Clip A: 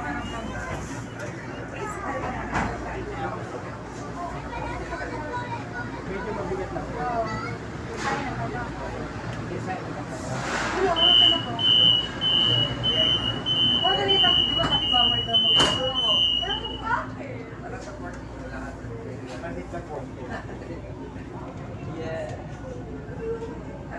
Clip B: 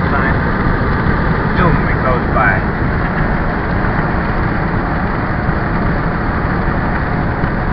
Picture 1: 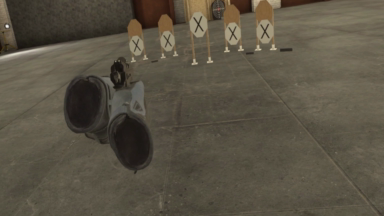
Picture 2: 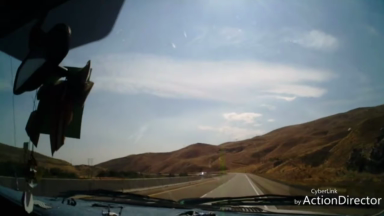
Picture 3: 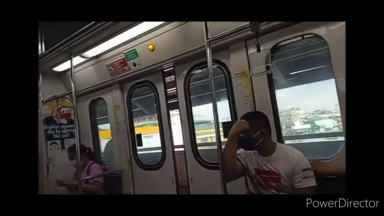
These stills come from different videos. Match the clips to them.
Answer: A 3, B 2